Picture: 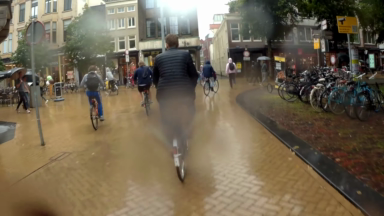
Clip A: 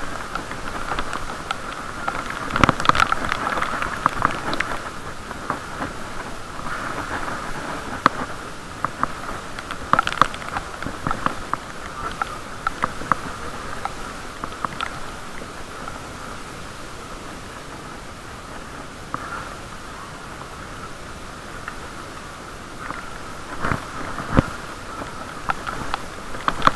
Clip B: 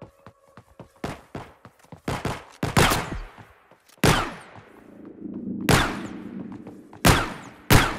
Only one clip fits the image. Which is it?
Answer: A